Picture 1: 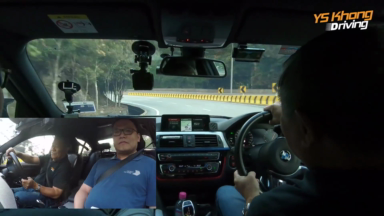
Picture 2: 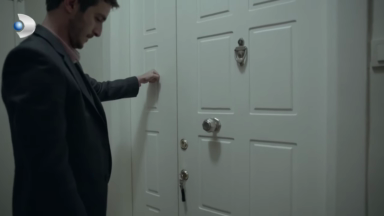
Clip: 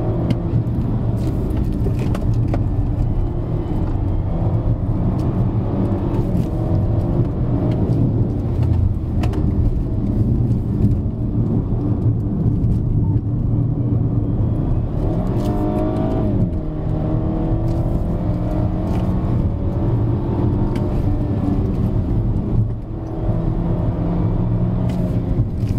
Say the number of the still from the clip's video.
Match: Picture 1